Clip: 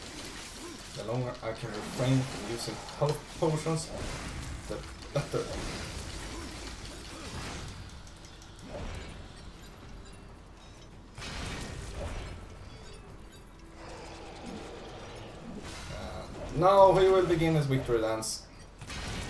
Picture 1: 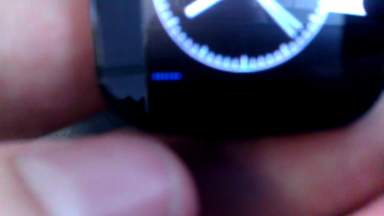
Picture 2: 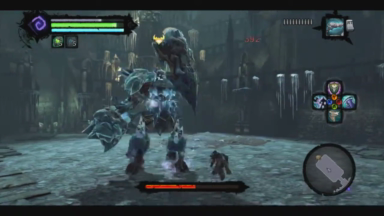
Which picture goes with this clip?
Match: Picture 2